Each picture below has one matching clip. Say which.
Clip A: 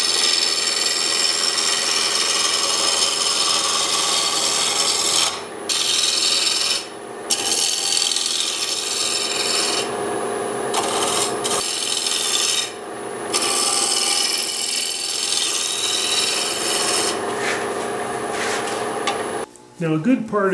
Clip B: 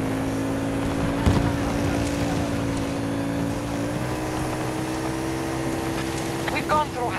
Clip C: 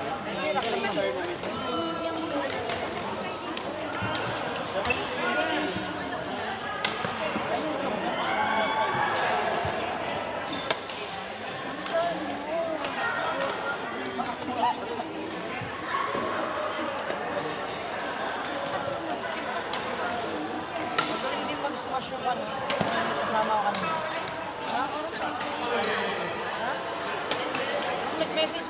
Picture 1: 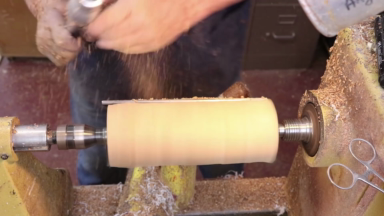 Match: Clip A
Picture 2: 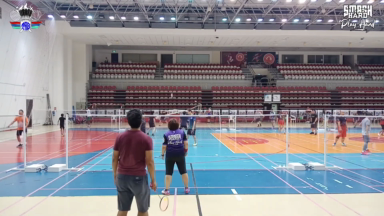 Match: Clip C